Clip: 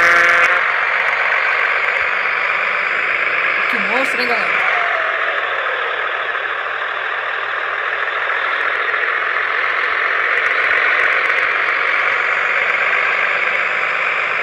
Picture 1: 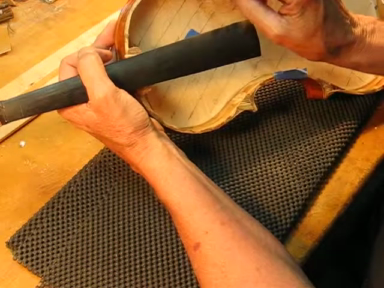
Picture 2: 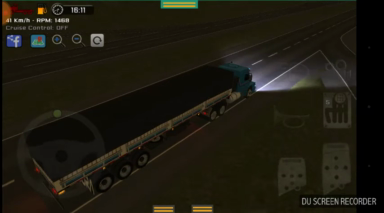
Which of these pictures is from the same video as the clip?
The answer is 2